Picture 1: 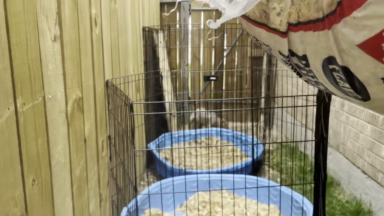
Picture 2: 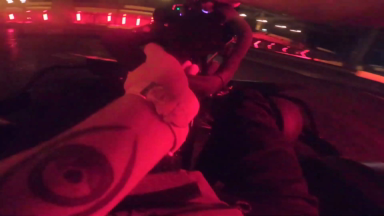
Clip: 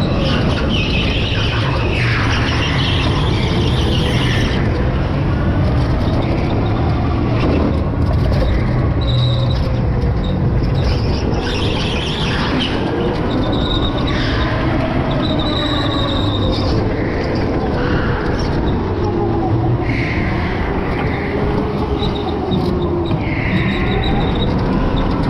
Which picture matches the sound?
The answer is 2